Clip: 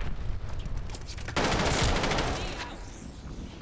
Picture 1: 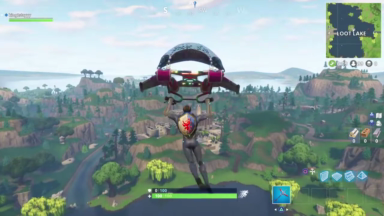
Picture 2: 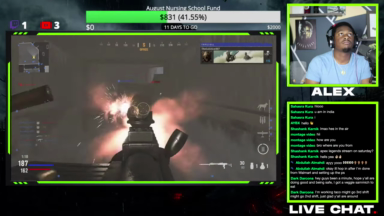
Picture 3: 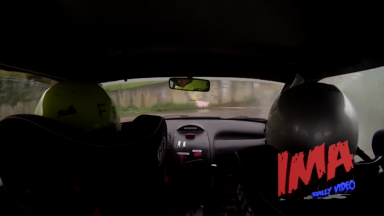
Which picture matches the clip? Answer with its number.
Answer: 2